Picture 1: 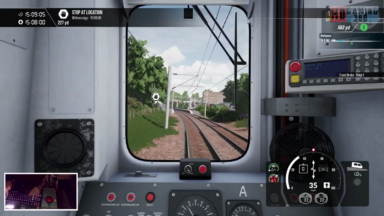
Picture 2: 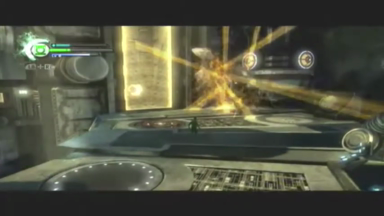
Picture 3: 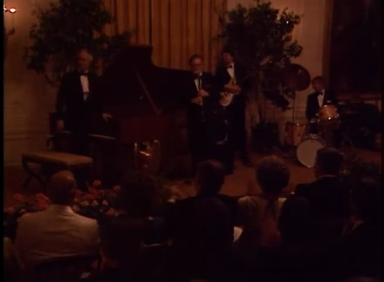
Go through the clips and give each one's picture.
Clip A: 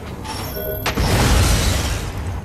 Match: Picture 2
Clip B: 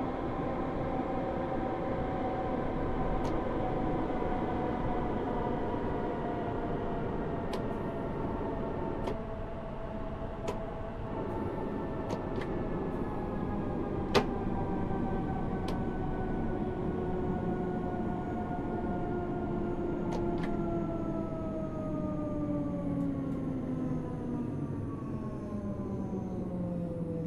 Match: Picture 1